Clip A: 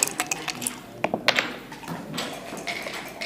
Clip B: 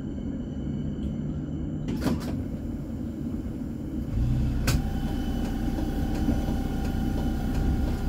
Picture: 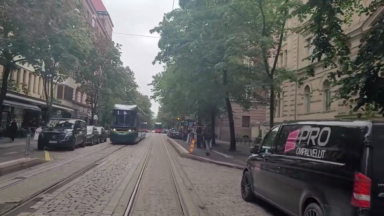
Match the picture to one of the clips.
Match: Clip B